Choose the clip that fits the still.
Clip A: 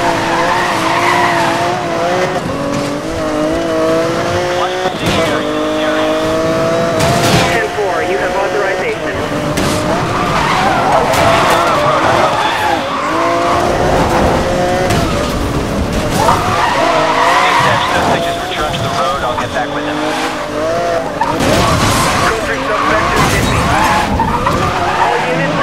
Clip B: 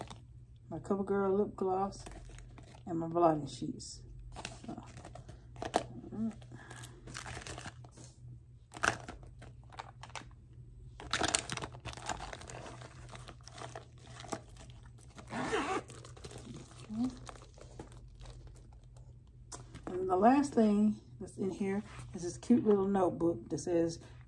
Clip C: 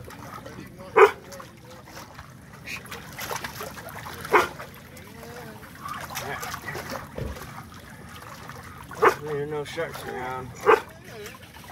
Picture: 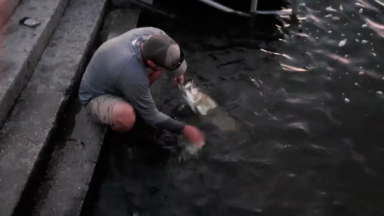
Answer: C